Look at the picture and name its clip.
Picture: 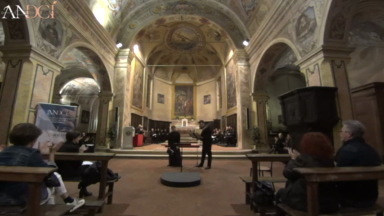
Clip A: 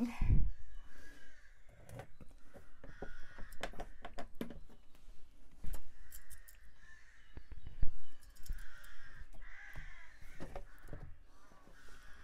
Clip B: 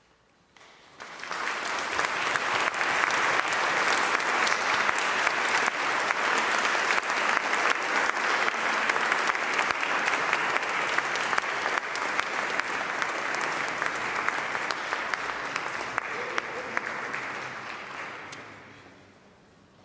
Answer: B